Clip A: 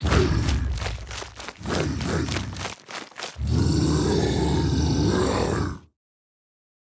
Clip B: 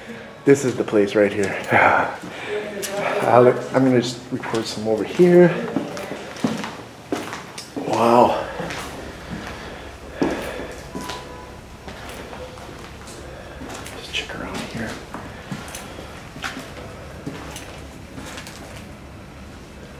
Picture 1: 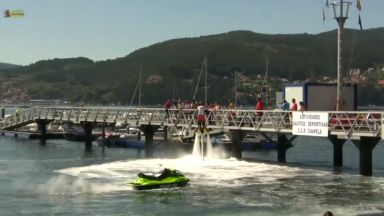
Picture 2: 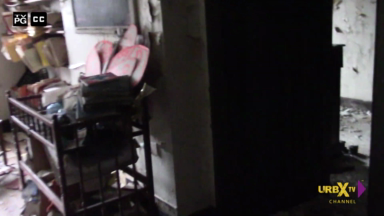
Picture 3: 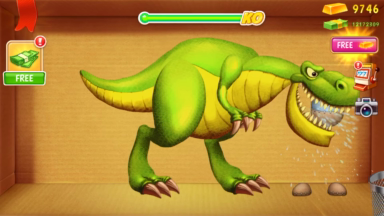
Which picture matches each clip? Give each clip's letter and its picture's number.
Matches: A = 3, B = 2